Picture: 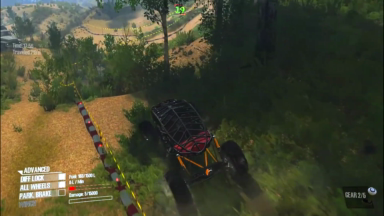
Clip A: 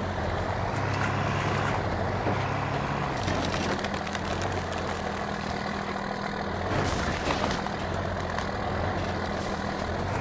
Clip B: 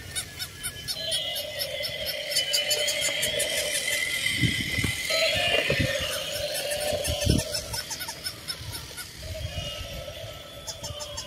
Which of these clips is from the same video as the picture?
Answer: A